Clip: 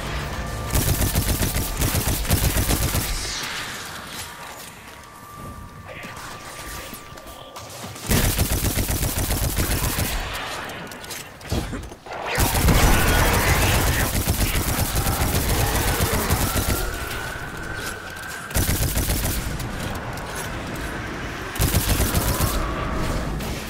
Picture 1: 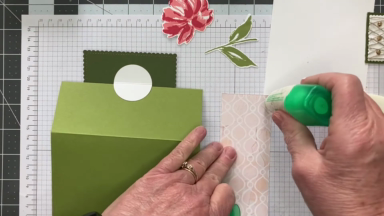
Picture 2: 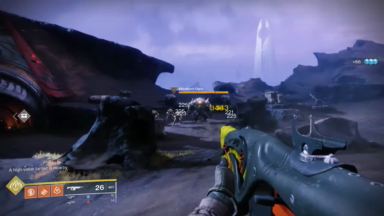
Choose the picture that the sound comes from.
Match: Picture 2